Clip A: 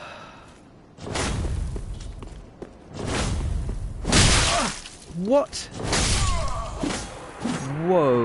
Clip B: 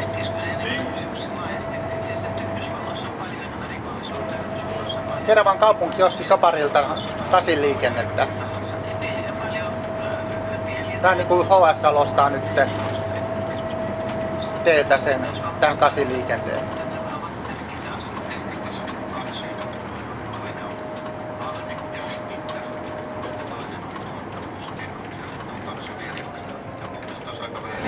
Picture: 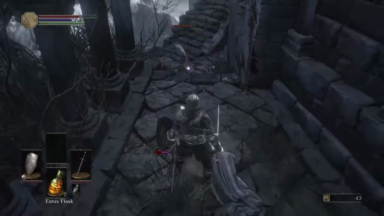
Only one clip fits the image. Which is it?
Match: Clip A